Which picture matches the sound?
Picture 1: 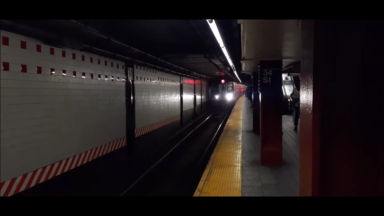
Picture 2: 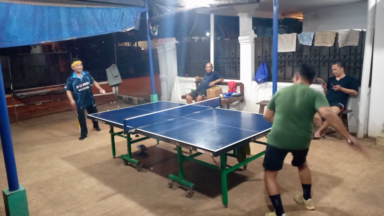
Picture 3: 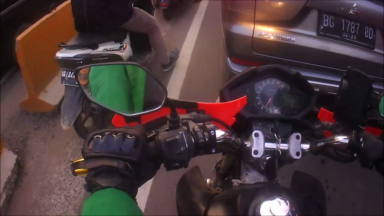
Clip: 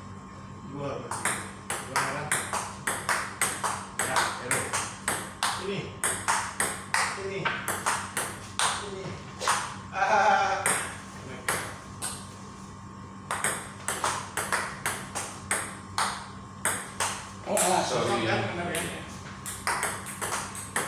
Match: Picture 2